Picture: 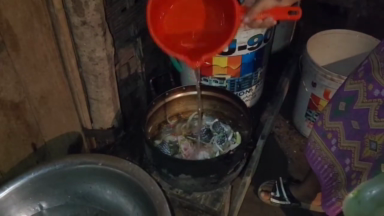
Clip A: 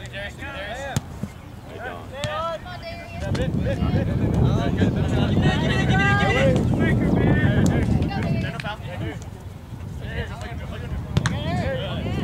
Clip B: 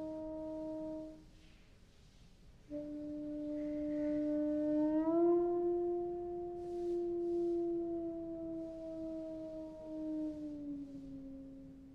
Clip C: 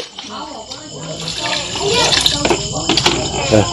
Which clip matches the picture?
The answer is C